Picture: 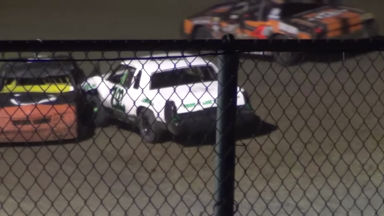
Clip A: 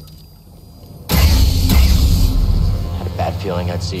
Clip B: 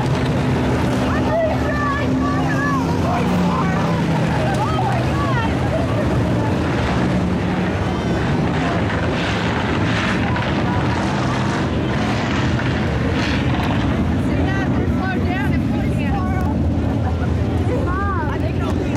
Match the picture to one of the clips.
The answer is B